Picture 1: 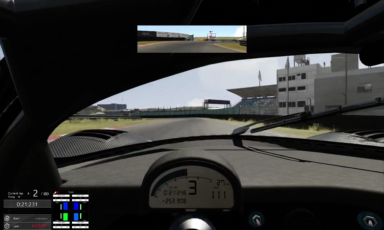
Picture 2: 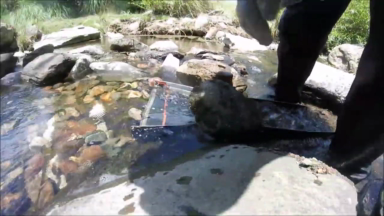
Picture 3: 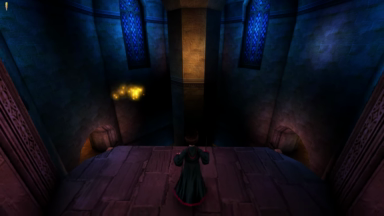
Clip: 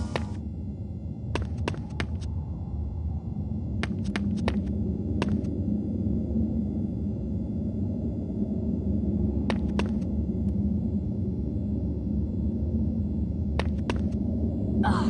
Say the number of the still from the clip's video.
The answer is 3